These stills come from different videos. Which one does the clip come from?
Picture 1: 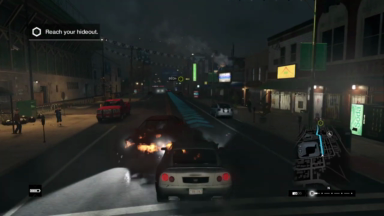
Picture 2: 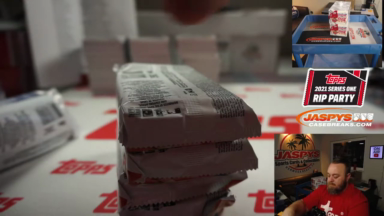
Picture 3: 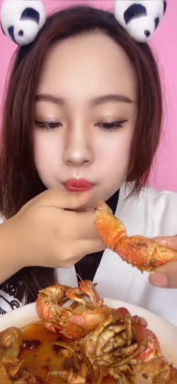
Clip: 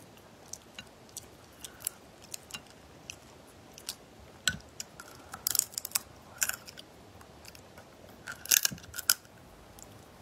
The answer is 3